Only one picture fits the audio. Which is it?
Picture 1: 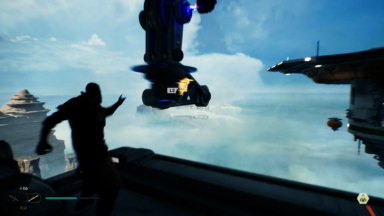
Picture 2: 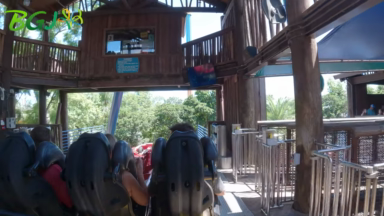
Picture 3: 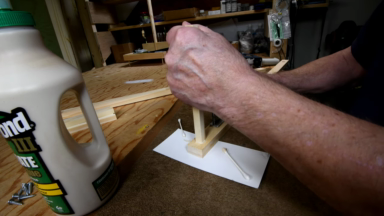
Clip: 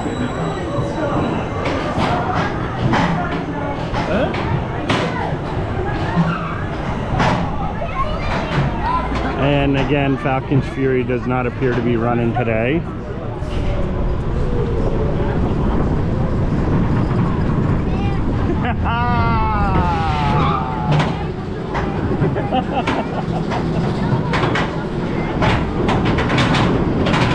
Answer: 2